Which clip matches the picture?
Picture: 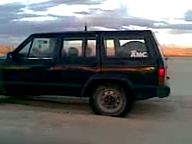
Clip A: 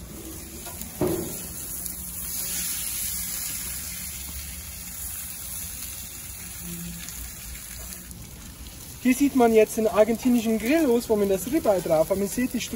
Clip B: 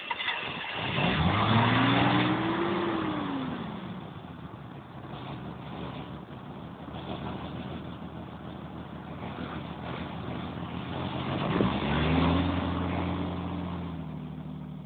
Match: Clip B